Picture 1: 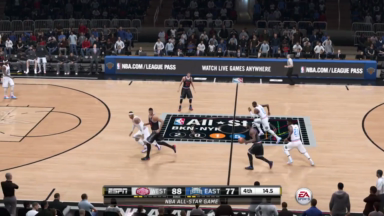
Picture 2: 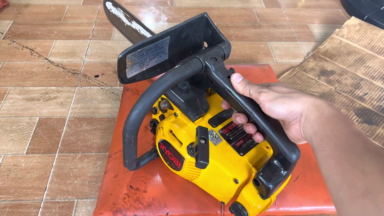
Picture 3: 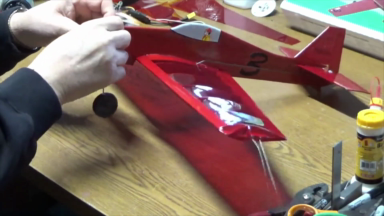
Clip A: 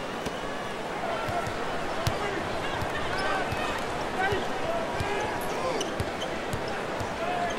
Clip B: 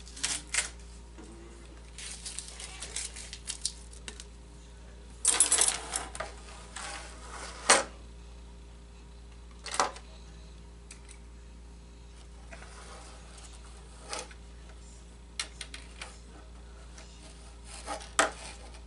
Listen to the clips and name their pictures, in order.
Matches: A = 1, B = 3